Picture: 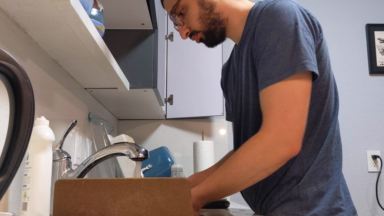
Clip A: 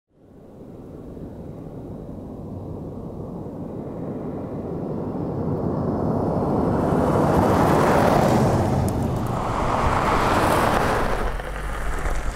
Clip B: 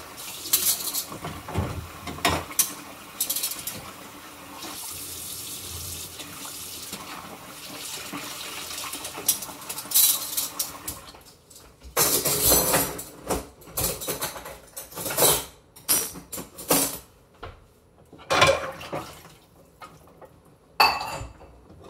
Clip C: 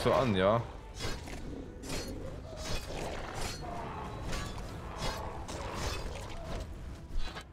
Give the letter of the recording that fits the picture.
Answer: B